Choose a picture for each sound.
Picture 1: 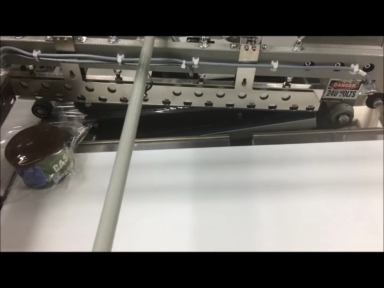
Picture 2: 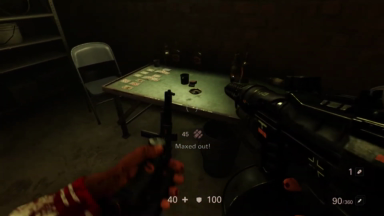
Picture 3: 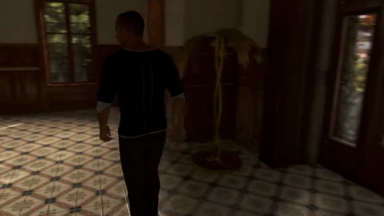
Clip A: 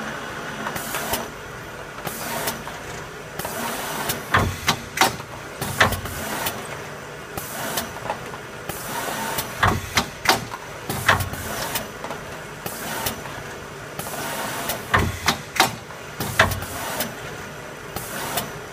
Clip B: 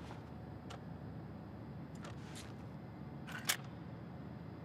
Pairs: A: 1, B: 2